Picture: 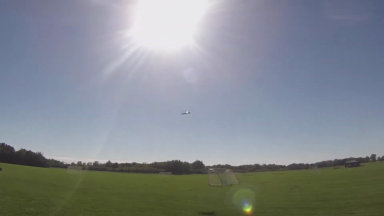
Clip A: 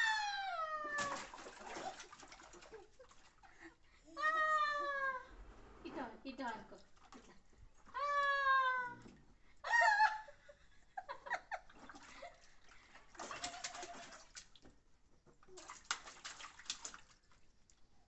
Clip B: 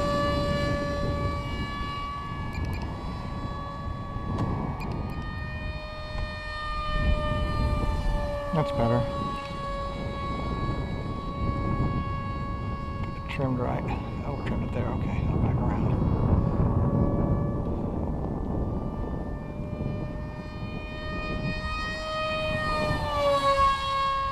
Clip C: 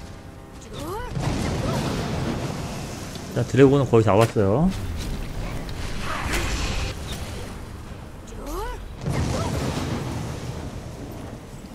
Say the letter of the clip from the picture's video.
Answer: B